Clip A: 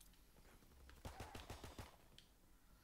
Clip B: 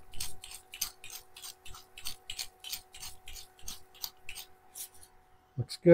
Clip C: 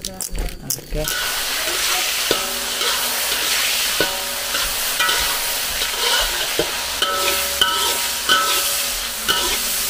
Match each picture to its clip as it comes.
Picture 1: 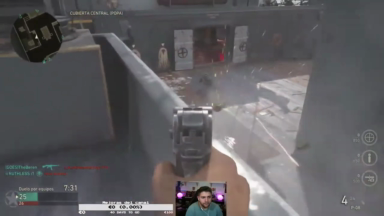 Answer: A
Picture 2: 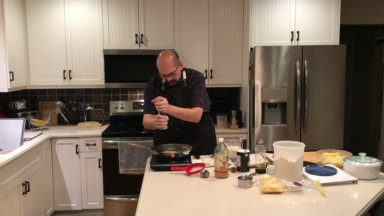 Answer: B